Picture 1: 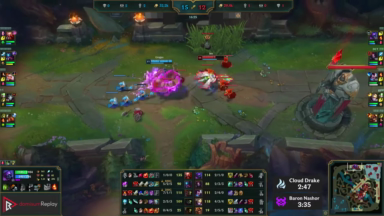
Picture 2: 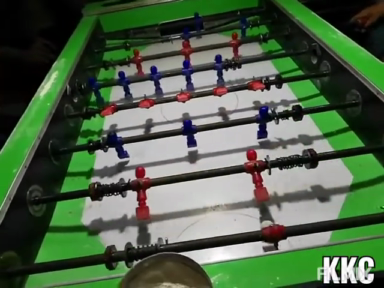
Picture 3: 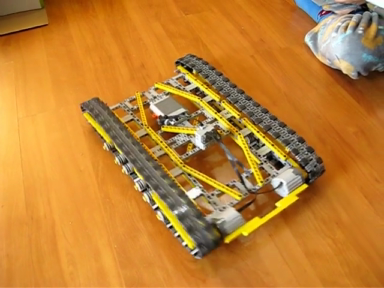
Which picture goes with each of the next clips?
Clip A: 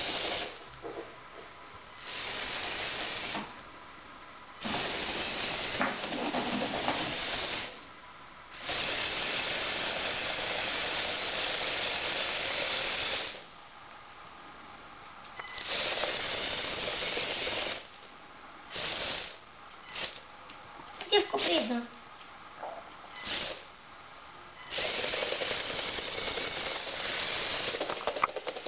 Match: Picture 3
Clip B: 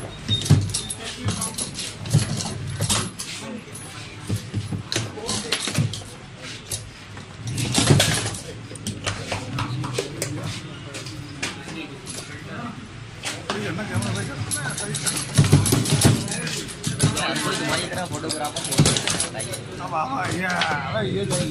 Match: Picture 2